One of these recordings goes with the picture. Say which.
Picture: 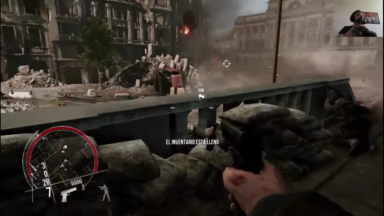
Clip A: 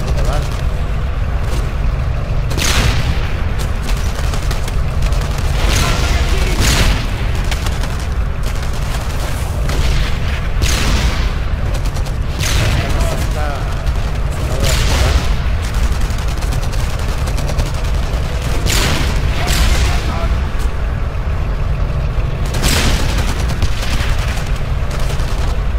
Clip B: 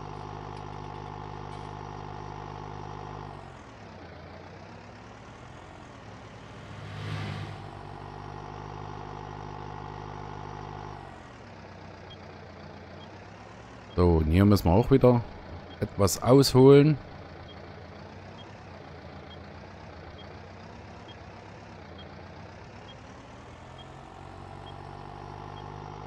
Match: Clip A